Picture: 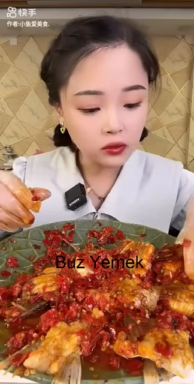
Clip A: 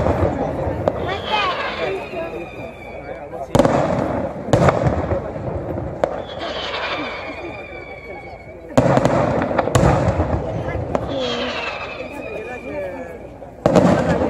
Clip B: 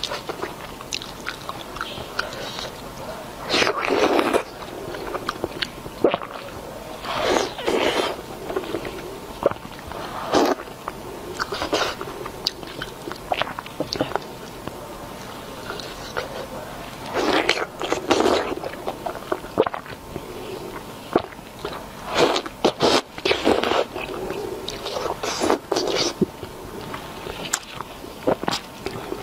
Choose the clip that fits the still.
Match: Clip B